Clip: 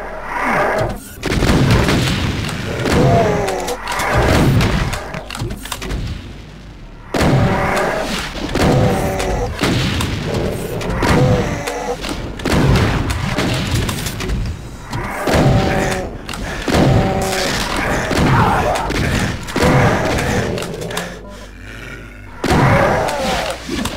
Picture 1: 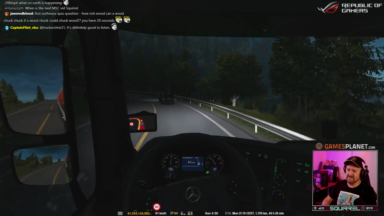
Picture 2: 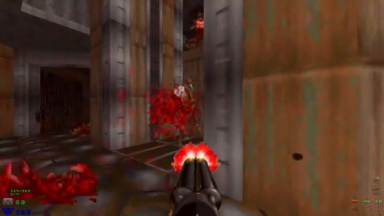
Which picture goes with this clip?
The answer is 2